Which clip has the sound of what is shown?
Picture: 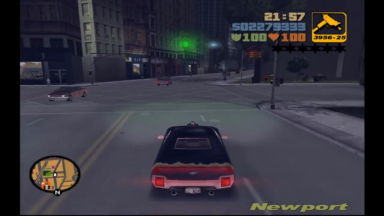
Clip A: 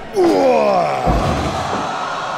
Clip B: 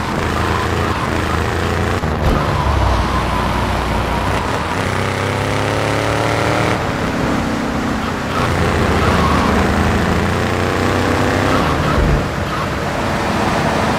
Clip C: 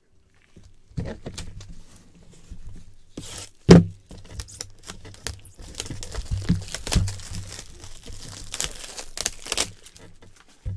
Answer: B